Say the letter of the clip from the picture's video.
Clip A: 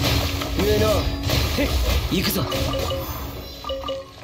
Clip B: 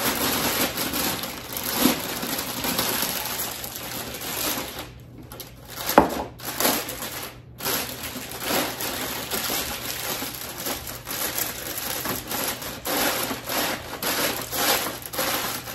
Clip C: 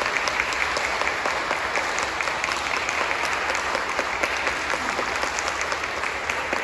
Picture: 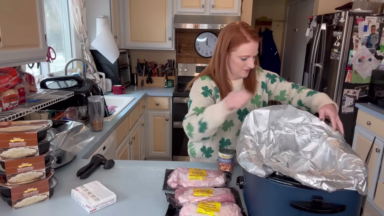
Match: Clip B